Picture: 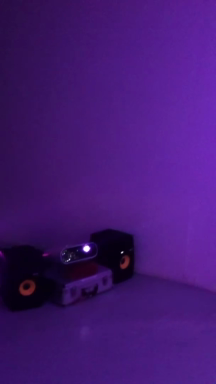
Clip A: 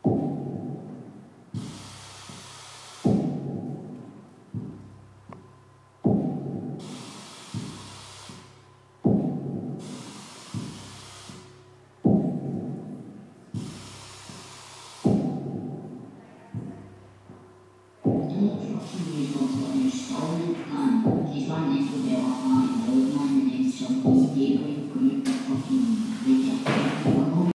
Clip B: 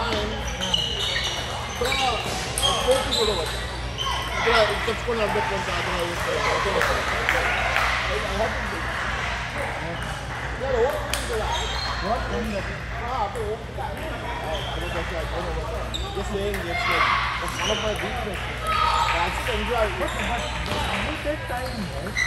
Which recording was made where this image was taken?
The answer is A